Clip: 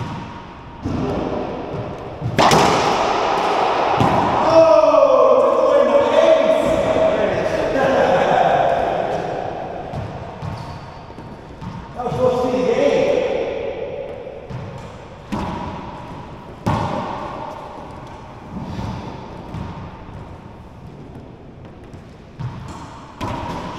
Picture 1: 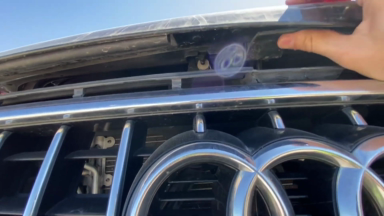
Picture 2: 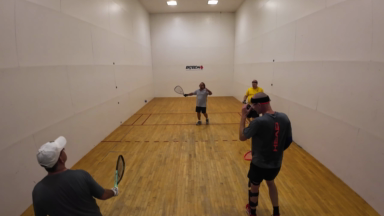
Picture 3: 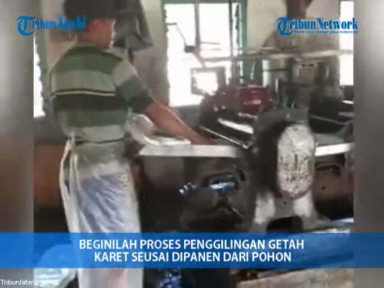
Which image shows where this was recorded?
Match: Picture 2